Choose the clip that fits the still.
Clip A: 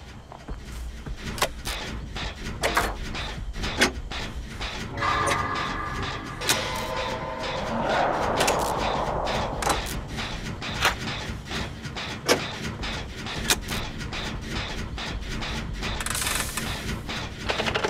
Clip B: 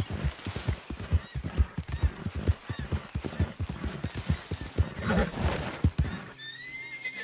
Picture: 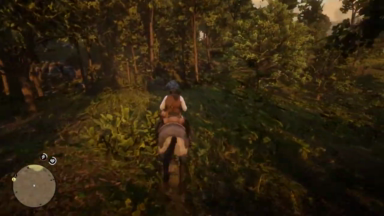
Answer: B